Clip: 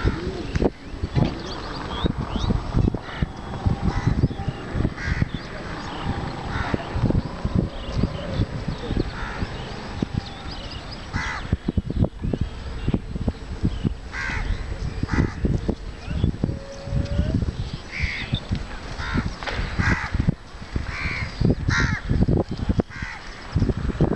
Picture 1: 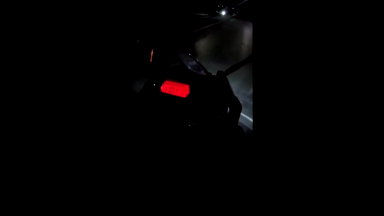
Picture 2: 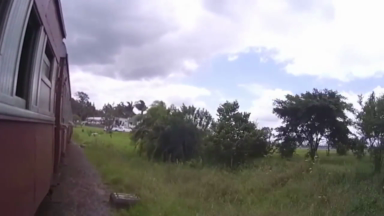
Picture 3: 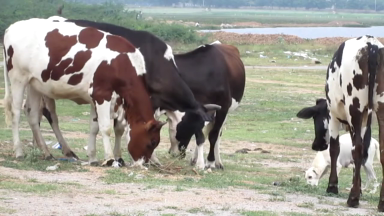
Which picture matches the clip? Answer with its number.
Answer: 3